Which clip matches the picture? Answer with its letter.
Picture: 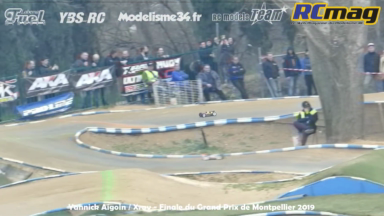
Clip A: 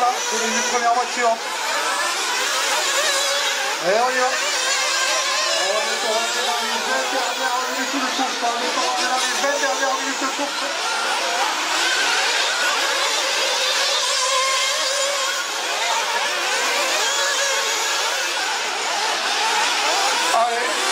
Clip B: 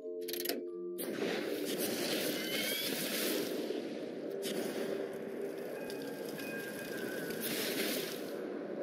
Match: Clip A